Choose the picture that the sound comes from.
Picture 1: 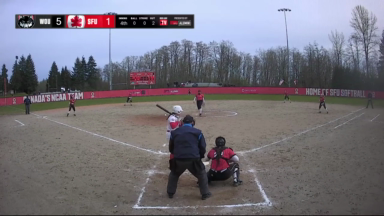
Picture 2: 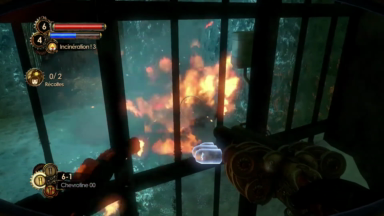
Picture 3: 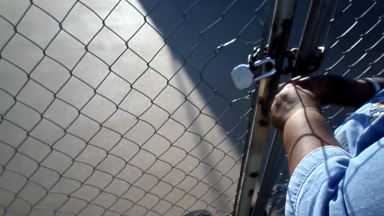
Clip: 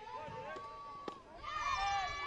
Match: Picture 1